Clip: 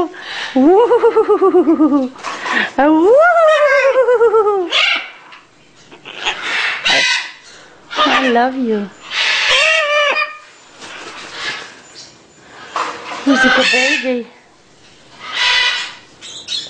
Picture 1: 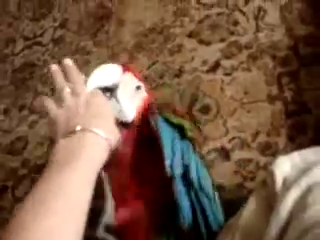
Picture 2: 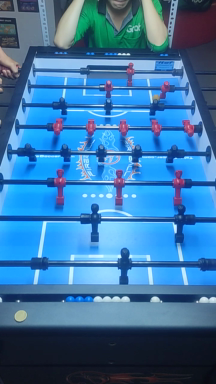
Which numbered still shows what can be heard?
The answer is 1